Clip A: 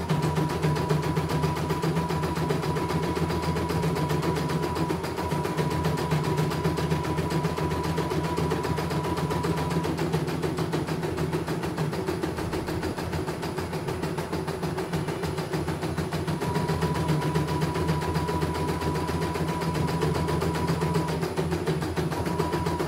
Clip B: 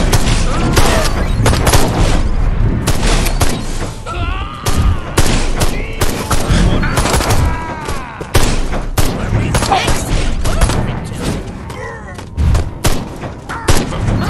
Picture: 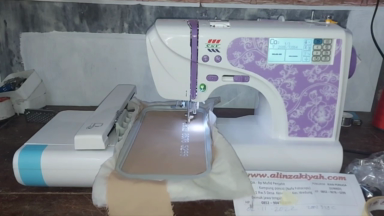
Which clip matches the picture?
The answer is A